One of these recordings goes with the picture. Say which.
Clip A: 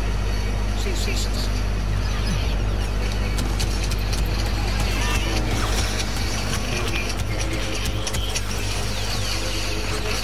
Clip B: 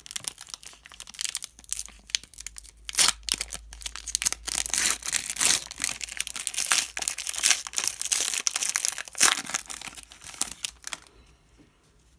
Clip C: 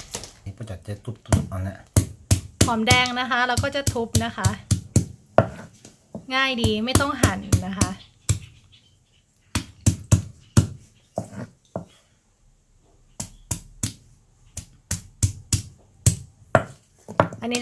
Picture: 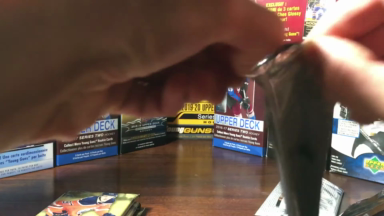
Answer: B